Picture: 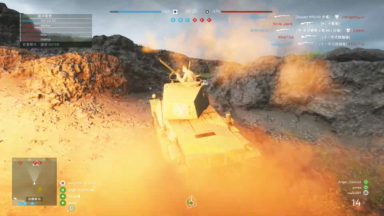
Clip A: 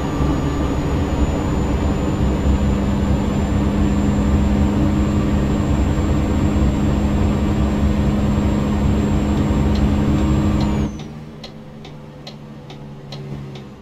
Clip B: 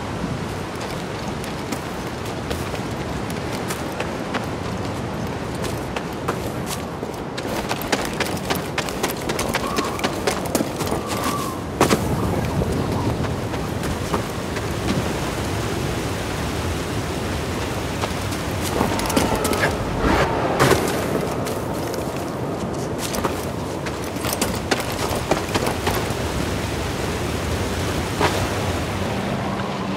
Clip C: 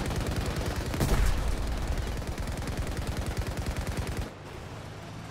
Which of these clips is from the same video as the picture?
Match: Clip C